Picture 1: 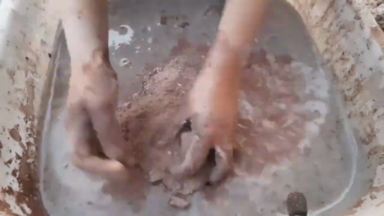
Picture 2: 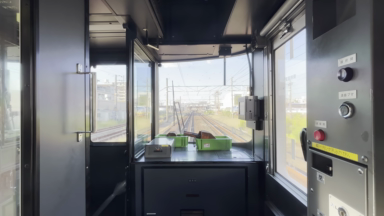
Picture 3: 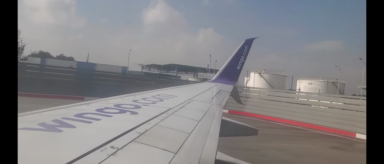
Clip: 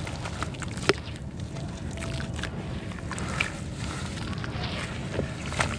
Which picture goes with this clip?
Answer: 1